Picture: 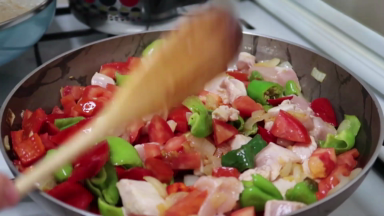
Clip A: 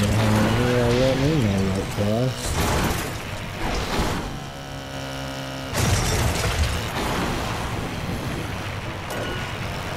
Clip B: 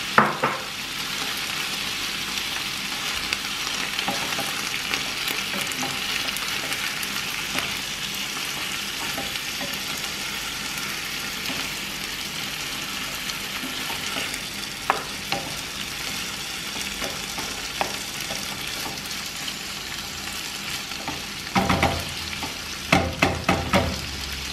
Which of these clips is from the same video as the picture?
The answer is B